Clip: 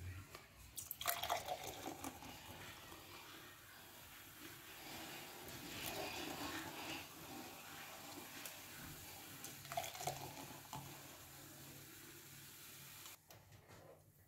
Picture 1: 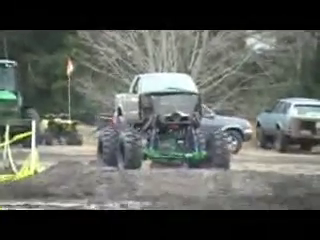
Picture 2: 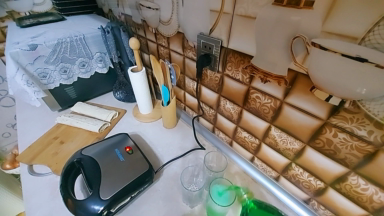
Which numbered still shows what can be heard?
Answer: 2